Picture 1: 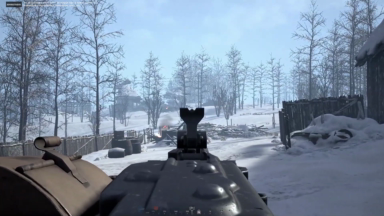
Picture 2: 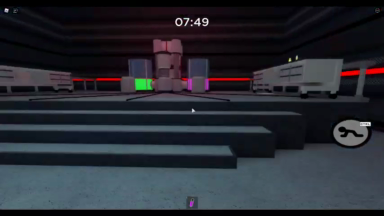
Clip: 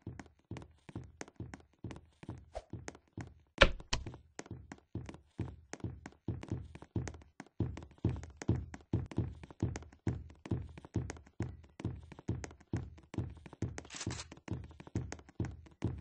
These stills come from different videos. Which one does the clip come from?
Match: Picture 2